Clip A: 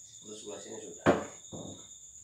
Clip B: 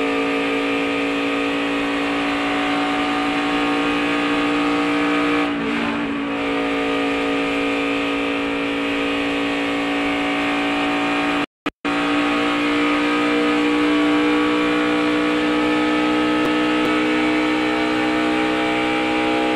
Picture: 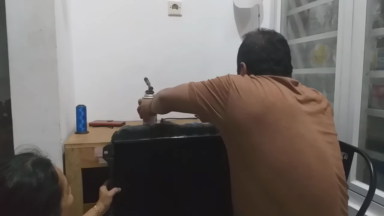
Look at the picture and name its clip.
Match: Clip A